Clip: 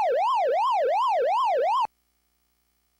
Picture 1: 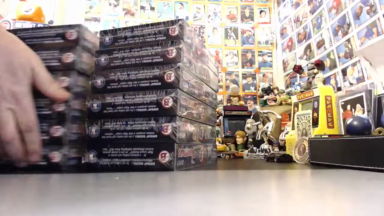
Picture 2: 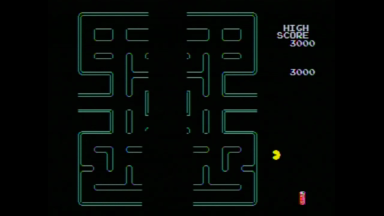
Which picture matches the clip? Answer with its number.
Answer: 2